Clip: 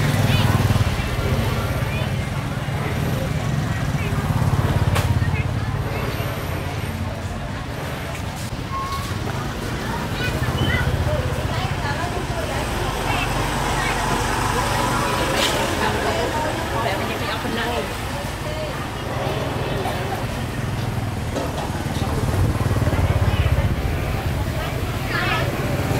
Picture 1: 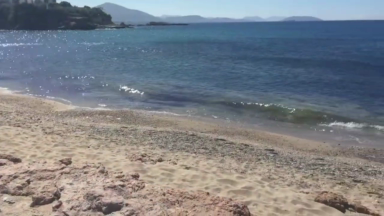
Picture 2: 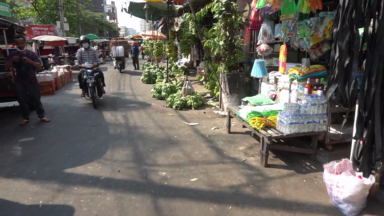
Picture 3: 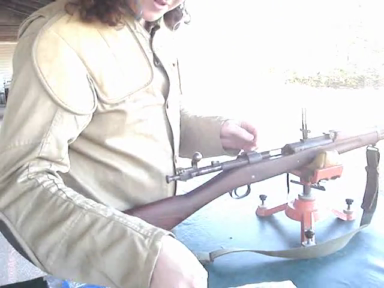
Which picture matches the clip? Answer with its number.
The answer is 2